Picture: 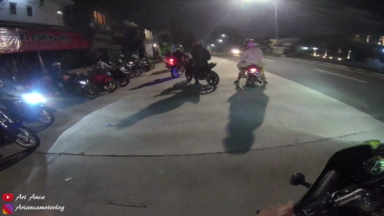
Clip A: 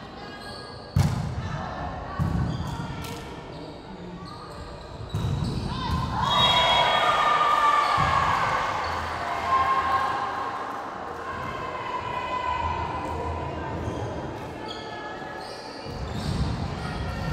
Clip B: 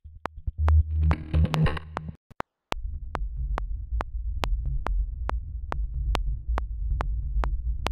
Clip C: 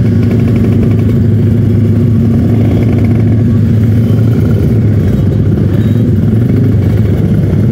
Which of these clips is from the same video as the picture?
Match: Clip C